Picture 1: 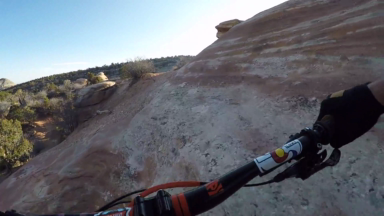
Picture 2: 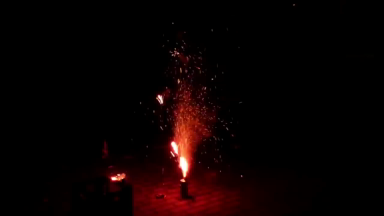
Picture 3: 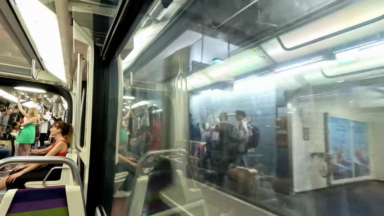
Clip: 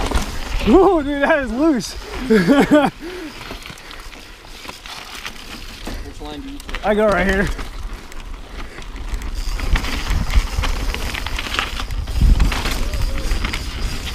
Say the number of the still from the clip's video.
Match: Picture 1